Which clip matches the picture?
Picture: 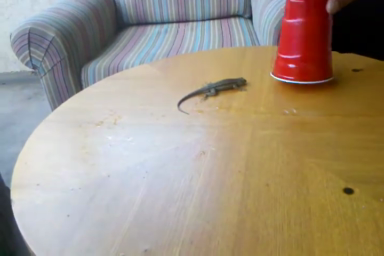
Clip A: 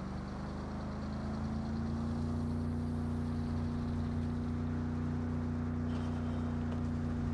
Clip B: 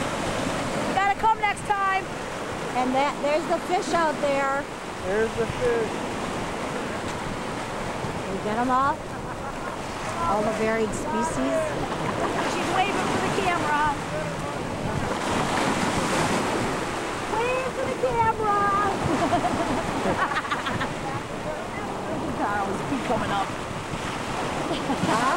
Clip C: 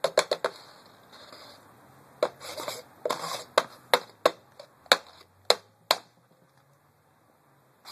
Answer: C